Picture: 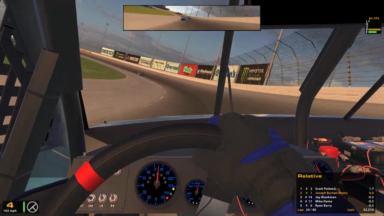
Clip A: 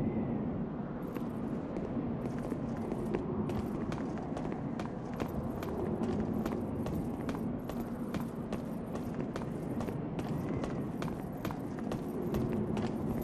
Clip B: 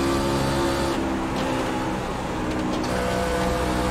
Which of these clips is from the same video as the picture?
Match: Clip B